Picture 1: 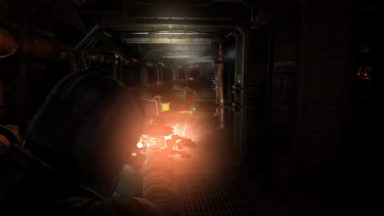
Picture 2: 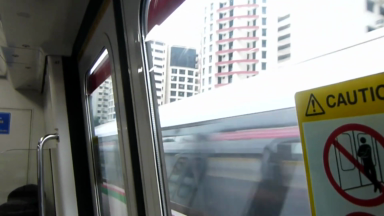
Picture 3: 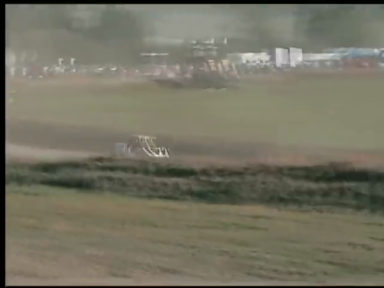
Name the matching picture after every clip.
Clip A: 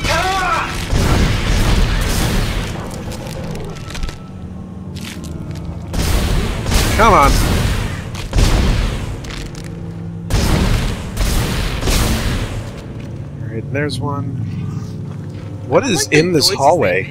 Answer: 1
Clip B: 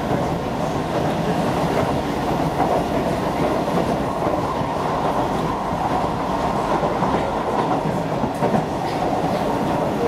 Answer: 2